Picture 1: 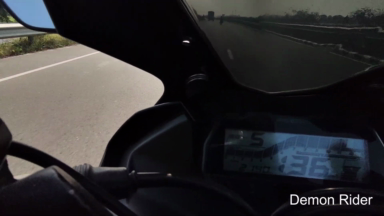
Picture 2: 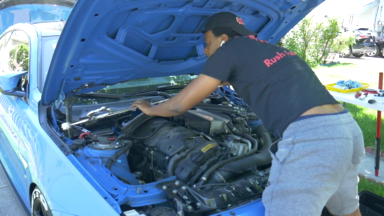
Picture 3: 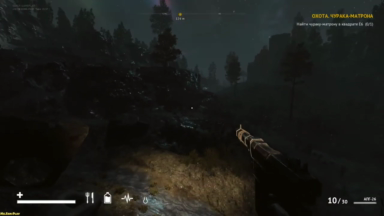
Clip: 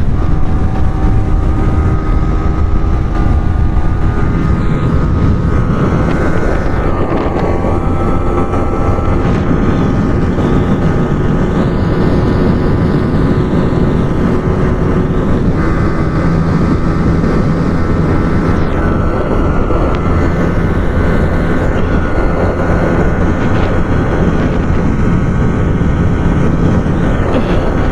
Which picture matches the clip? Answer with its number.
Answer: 1